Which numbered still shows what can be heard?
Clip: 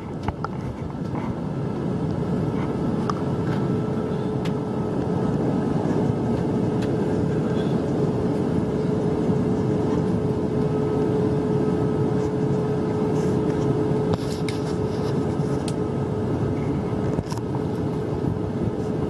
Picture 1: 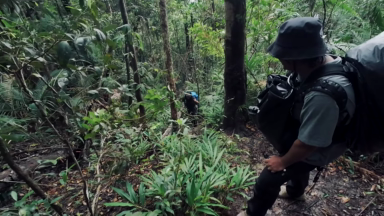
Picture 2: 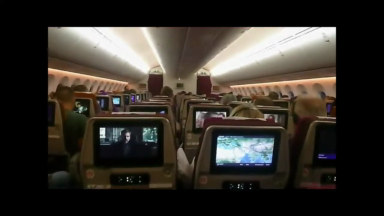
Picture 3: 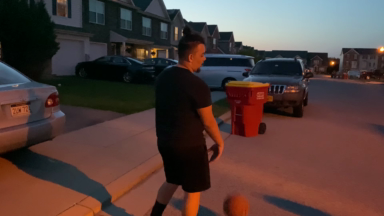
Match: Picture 2